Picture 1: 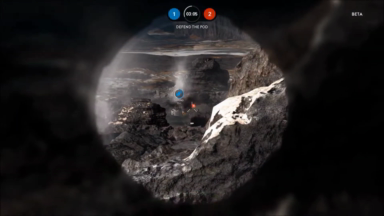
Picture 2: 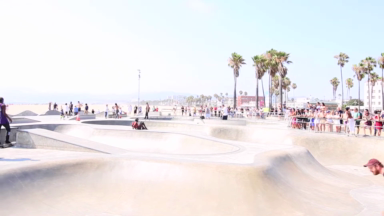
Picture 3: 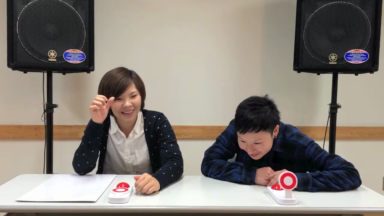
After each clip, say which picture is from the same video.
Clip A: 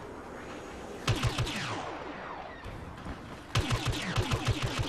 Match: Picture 1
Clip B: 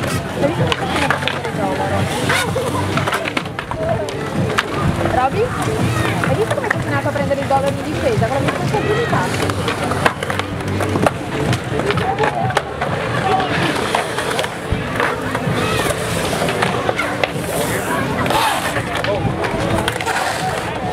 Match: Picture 2